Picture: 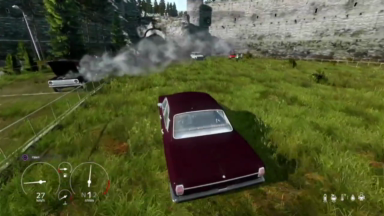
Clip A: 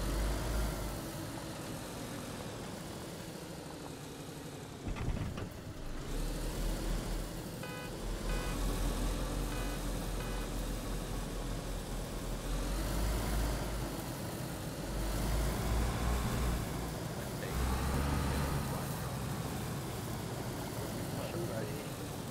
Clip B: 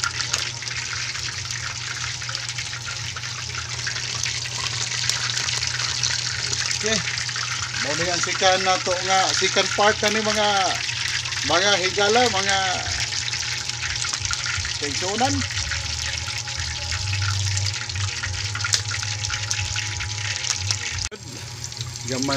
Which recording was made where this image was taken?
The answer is A